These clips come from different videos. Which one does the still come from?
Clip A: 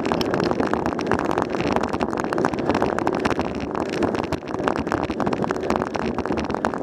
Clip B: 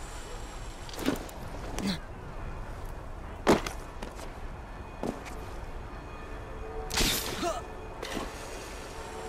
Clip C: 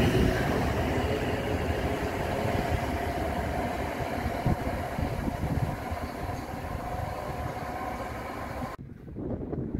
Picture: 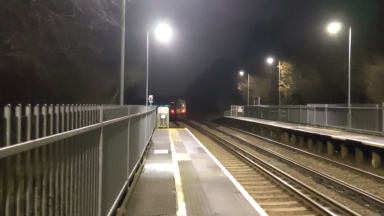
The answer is C